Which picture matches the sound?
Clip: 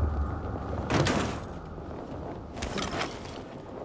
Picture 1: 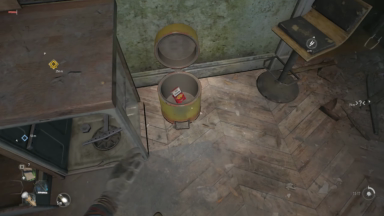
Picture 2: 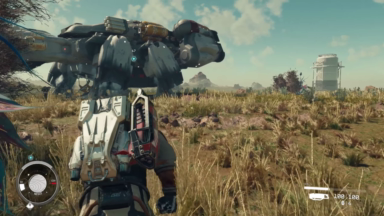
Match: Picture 1